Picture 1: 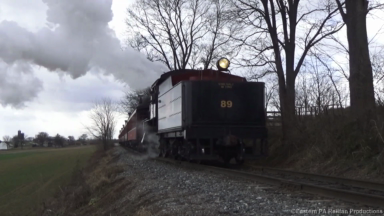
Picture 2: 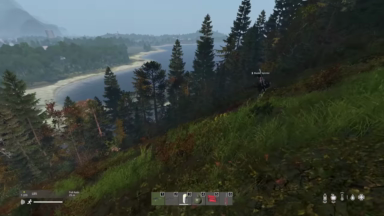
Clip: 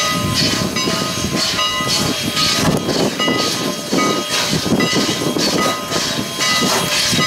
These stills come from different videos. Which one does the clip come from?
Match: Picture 1